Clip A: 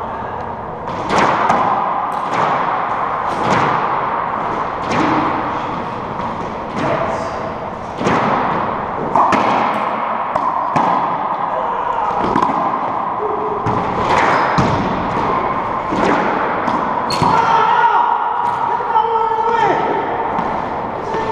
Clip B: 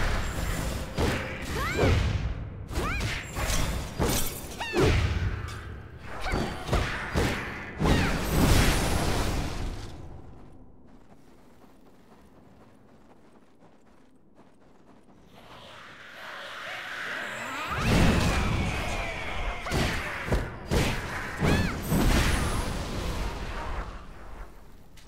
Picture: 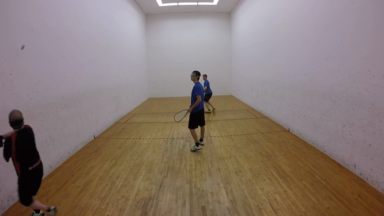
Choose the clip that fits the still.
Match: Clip A